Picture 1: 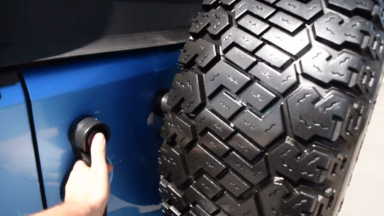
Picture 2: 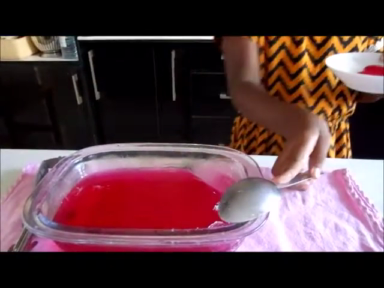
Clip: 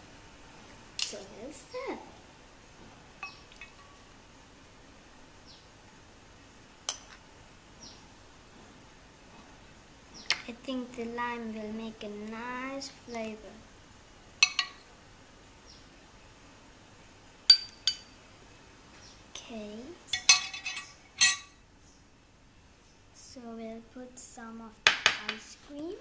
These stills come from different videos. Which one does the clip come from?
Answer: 2